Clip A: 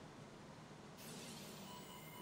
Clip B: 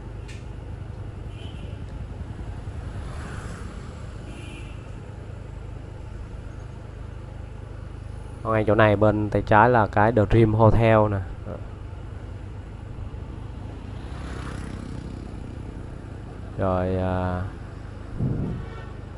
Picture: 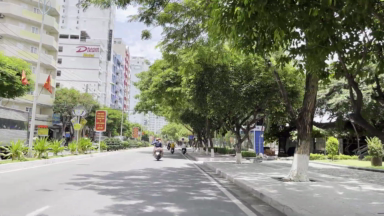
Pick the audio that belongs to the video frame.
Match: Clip B